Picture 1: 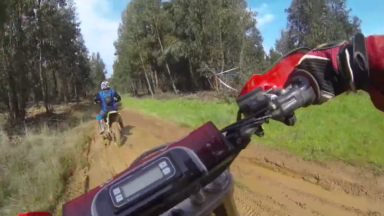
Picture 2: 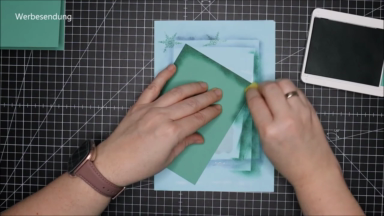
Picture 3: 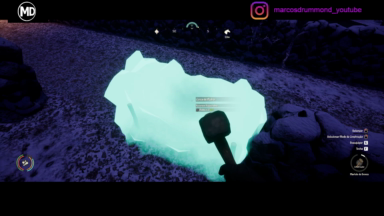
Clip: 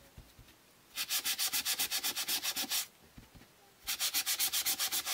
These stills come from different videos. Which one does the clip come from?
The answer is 2